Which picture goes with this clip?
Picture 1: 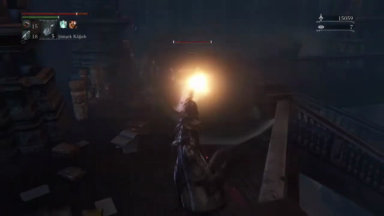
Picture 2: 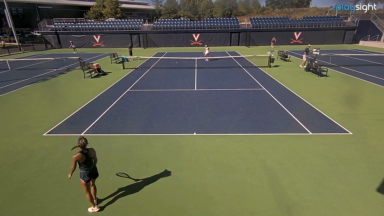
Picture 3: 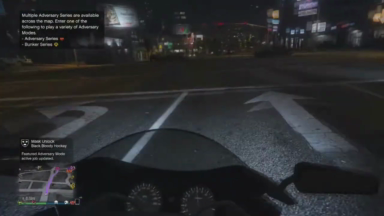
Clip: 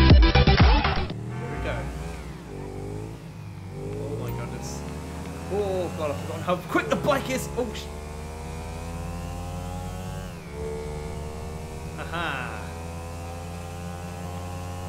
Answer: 3